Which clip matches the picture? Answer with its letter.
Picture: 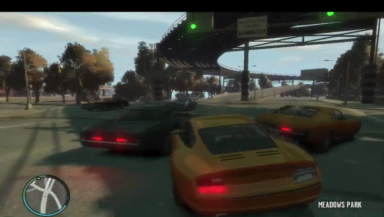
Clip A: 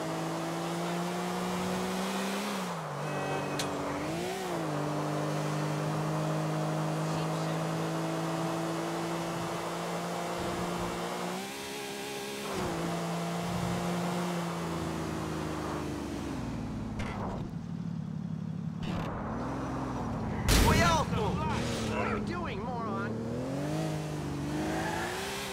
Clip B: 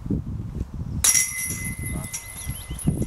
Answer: A